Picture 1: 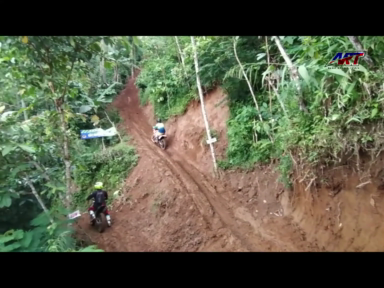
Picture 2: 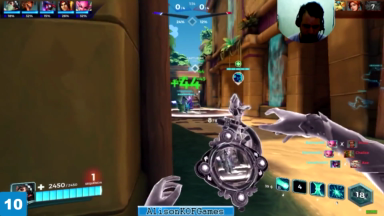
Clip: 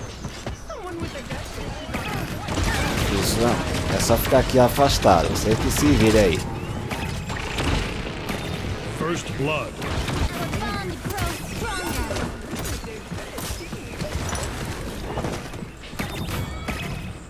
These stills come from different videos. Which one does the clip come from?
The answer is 2